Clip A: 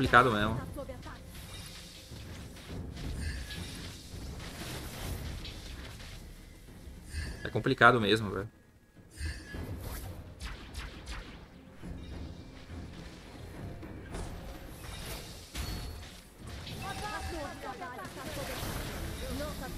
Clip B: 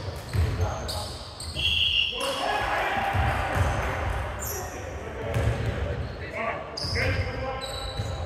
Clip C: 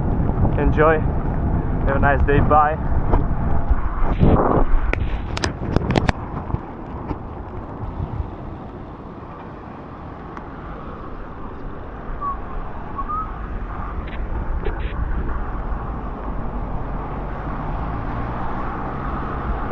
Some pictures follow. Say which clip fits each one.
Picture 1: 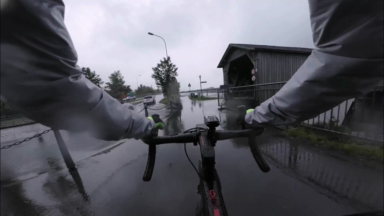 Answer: C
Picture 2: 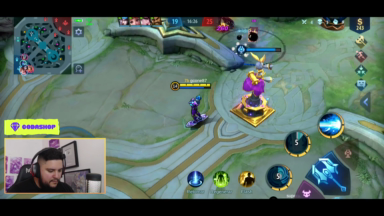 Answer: A